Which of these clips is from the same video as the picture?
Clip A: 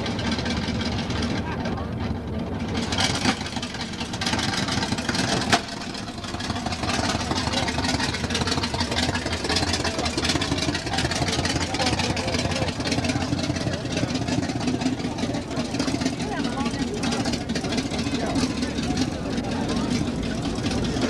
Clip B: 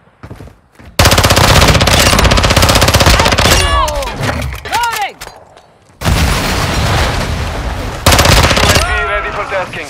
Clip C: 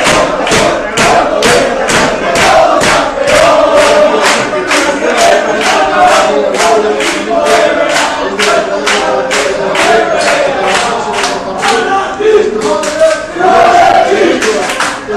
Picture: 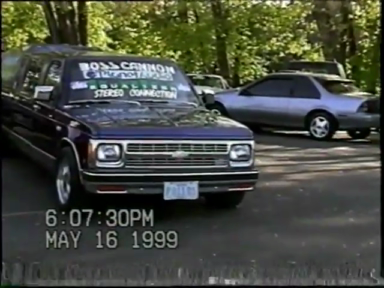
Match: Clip A